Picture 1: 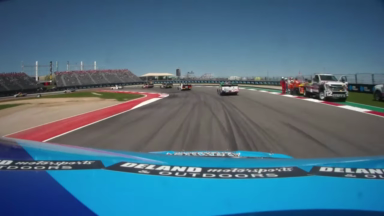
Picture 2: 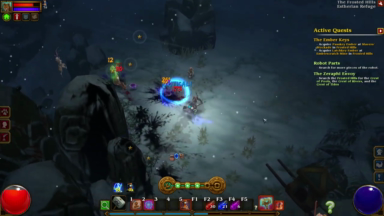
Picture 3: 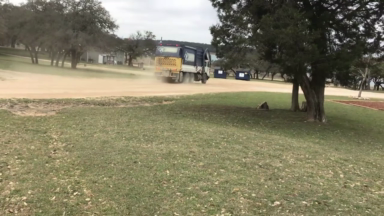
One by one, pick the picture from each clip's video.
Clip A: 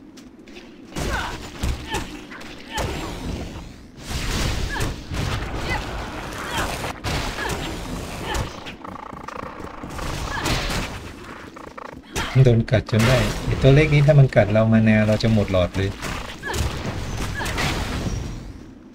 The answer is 2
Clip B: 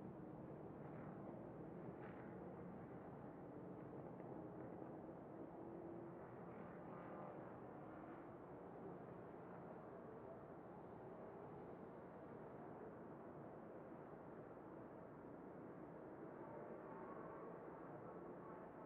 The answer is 1